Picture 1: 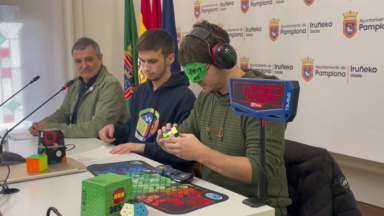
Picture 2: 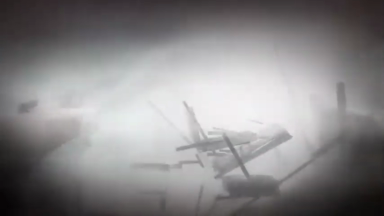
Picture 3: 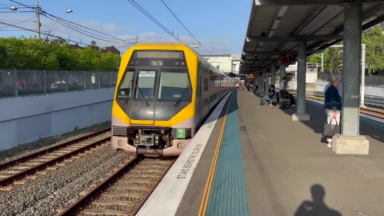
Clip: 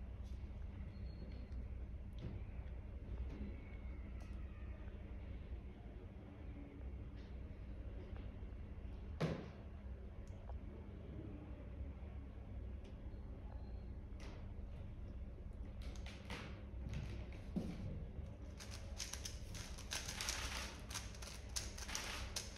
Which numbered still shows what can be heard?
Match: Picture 1